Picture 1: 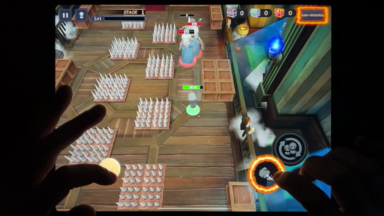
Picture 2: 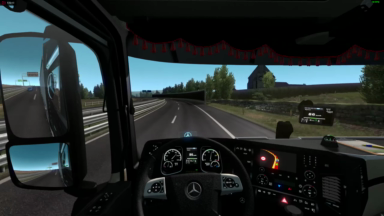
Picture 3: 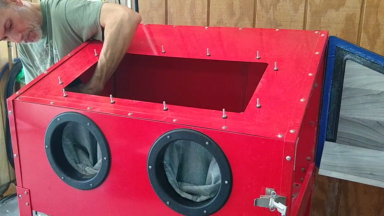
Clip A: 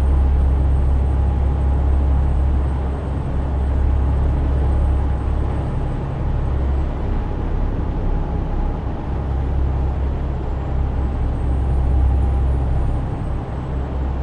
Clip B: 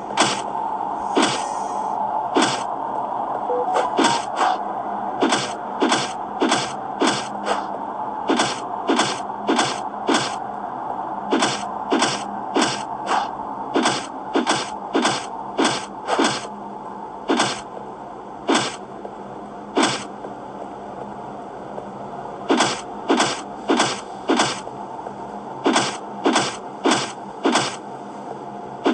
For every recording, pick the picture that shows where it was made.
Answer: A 2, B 1